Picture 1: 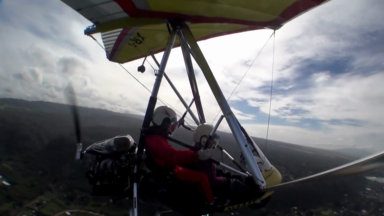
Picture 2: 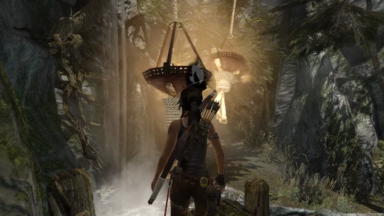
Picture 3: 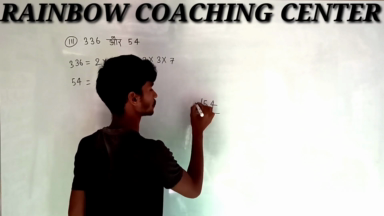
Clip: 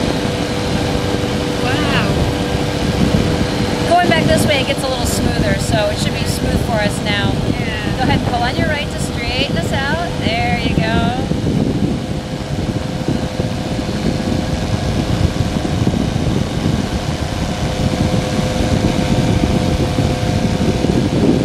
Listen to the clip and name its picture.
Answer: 1